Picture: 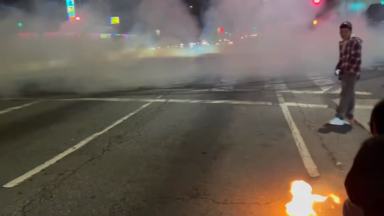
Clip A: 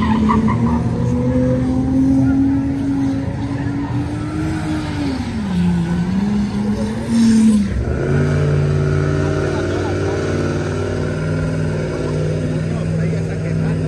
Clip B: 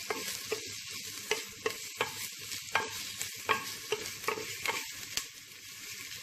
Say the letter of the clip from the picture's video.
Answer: A